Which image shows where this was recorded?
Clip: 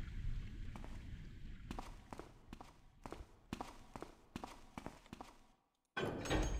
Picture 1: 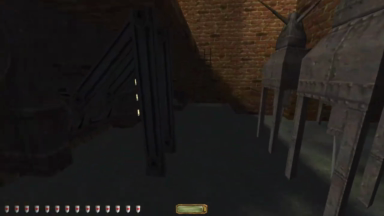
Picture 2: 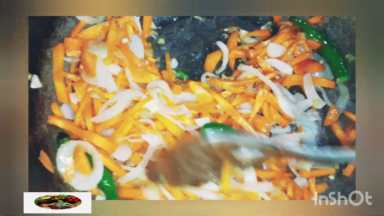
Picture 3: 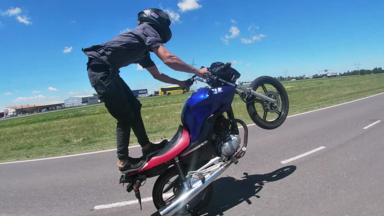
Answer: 1